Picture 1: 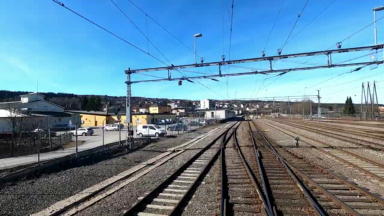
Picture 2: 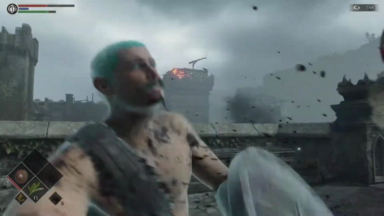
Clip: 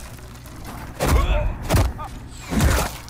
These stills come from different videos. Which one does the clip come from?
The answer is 2